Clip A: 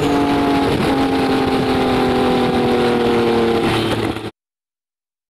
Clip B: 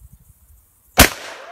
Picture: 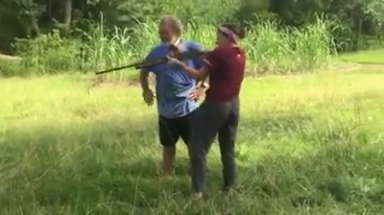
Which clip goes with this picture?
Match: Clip B